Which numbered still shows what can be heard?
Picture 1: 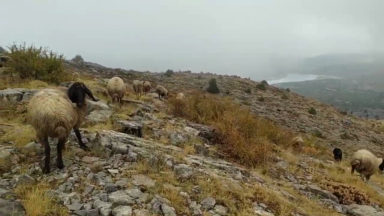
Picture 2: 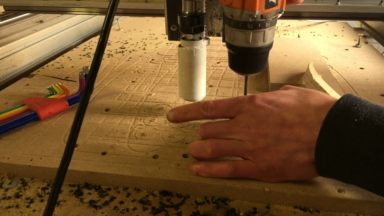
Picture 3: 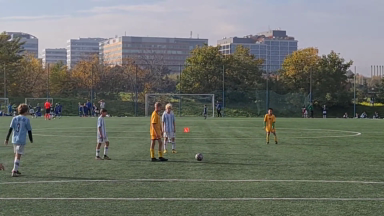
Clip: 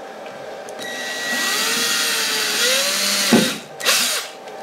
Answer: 2